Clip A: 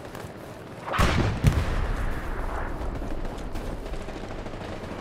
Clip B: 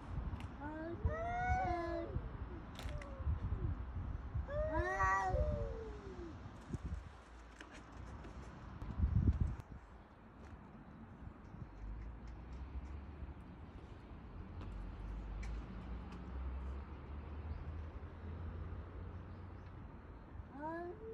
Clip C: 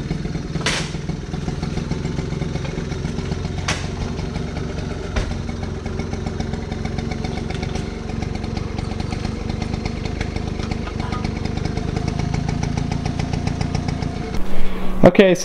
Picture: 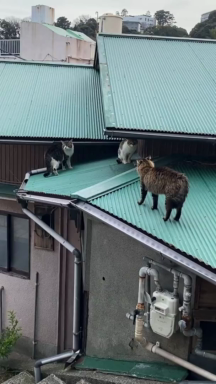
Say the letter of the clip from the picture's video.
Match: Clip B